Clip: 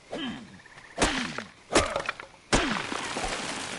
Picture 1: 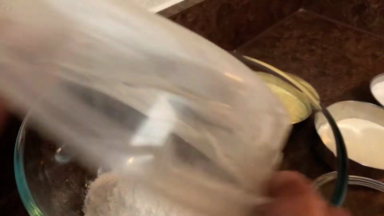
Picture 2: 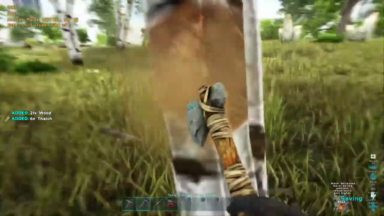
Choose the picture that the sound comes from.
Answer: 2